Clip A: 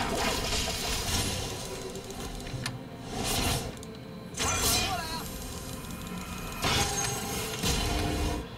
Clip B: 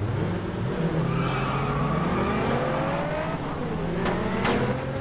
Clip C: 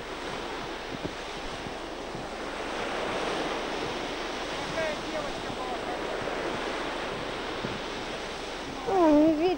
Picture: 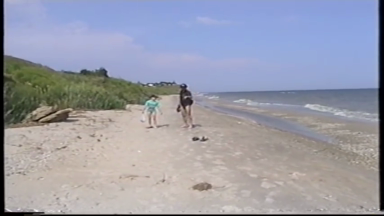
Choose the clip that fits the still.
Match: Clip C